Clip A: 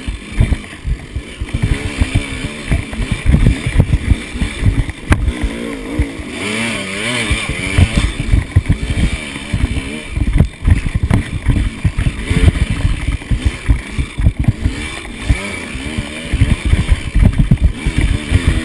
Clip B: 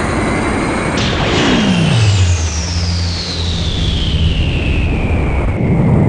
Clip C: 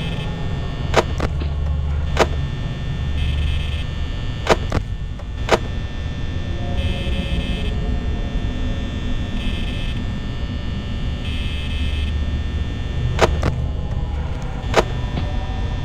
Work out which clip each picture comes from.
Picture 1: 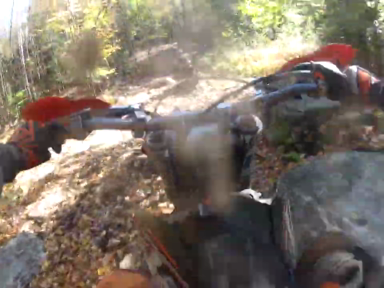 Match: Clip A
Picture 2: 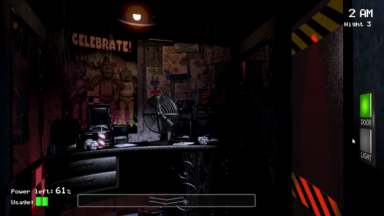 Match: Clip C